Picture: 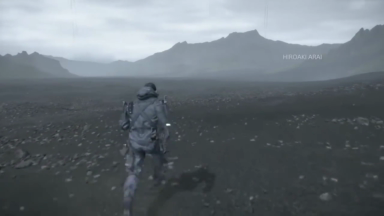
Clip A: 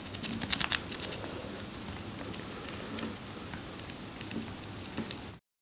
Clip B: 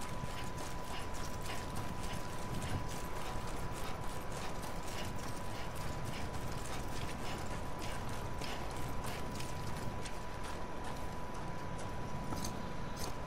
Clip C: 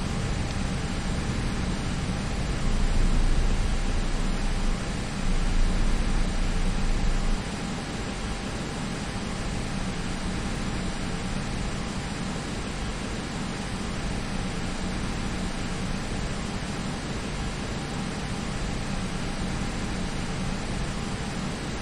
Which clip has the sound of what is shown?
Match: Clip B